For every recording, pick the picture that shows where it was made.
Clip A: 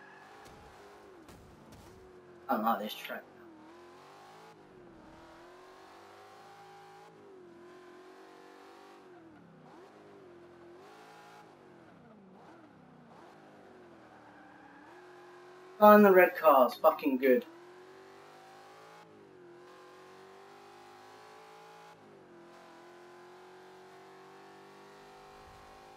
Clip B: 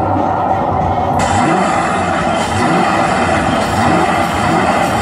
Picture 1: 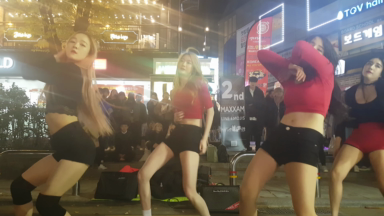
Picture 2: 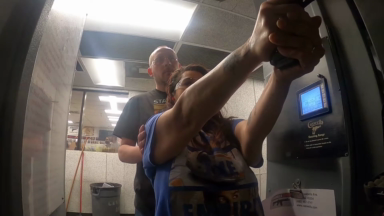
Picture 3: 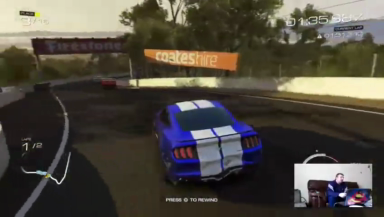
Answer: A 3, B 1